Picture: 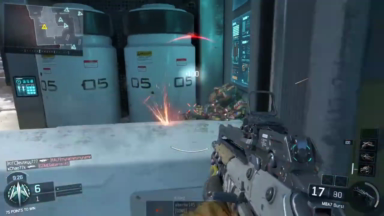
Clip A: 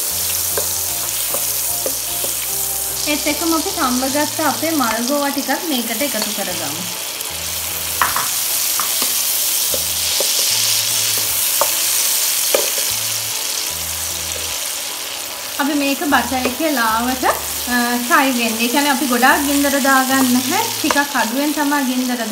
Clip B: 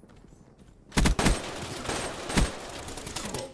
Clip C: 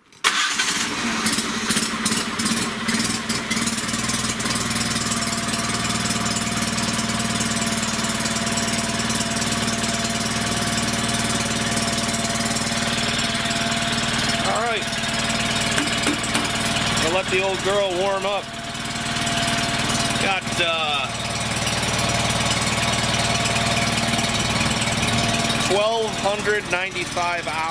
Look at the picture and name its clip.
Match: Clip B